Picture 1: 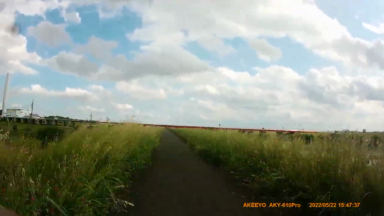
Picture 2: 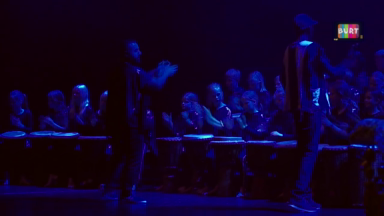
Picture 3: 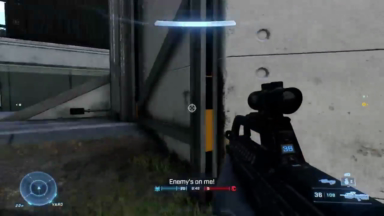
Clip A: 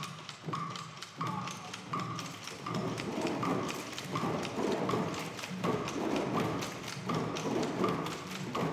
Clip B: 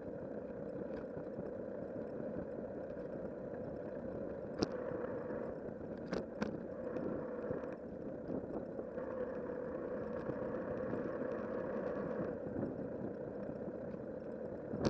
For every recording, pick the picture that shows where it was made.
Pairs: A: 2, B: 1